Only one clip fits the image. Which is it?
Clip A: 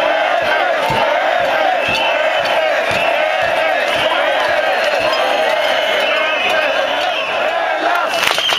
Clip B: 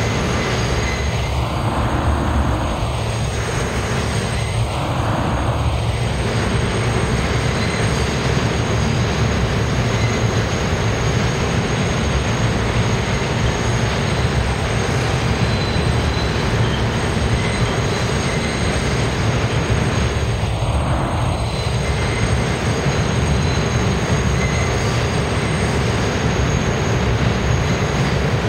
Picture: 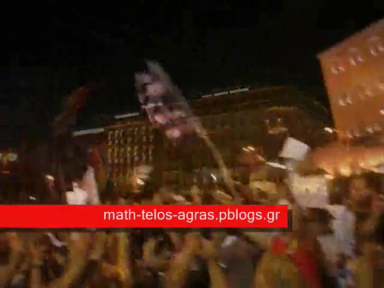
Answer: A